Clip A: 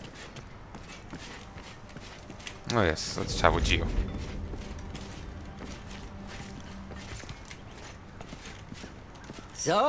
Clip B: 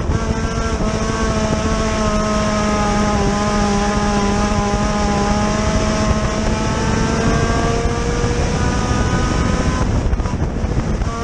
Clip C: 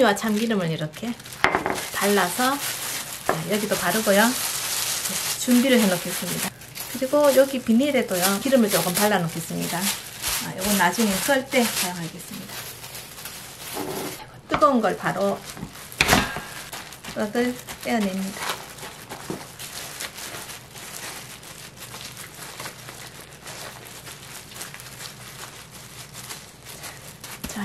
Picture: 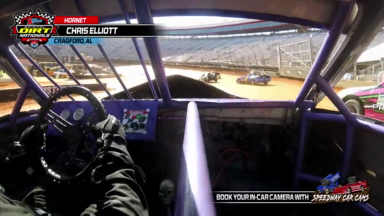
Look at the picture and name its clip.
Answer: B